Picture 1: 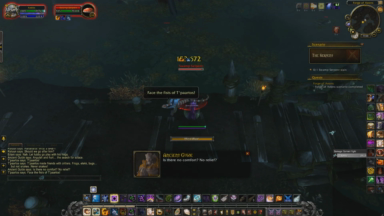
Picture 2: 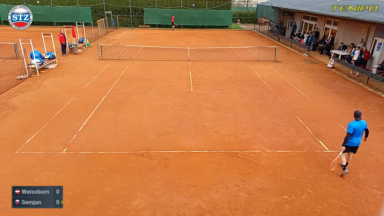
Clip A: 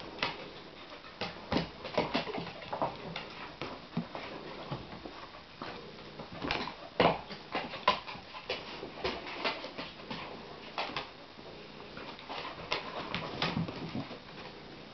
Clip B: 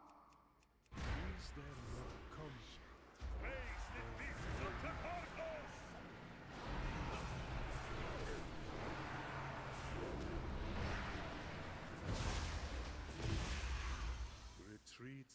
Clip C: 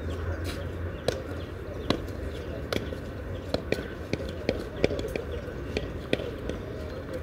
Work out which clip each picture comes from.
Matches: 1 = B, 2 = C